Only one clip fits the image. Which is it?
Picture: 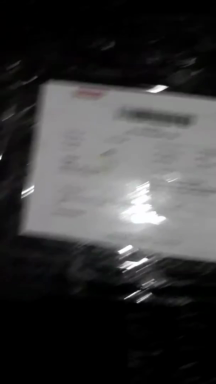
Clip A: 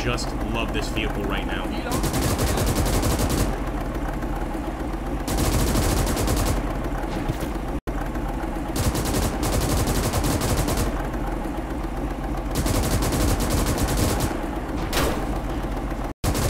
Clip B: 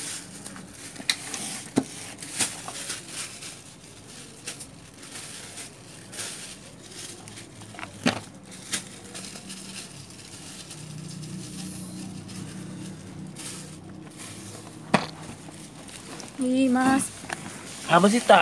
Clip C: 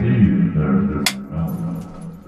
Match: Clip B